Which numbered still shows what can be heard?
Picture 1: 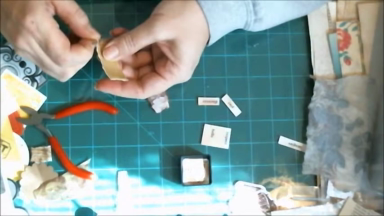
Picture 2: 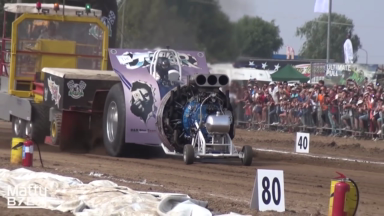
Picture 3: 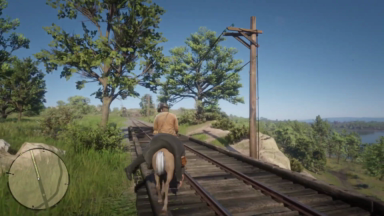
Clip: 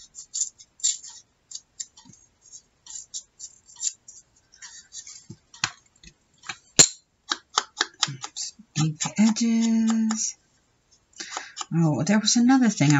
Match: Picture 1